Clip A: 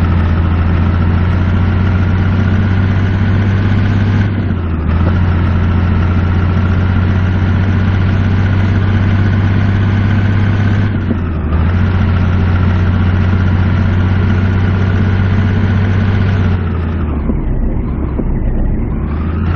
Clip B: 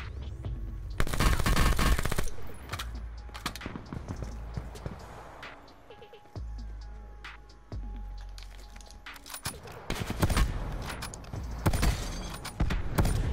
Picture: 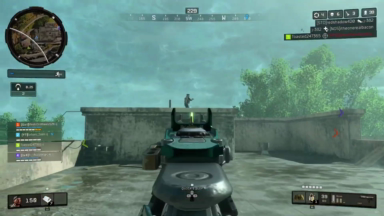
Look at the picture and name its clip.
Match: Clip B